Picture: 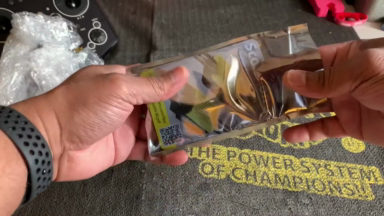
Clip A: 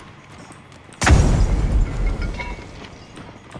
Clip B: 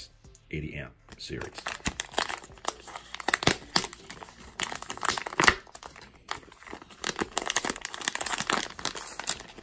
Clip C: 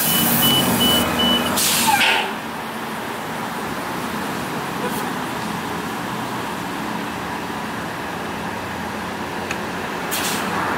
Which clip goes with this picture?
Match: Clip B